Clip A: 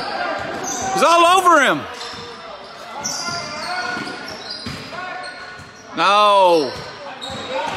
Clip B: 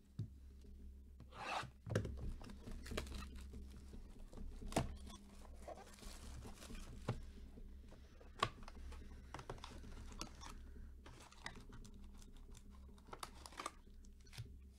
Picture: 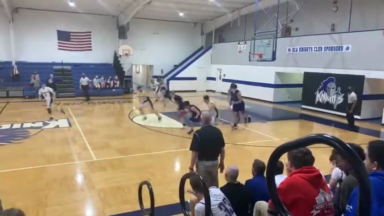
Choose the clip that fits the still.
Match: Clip A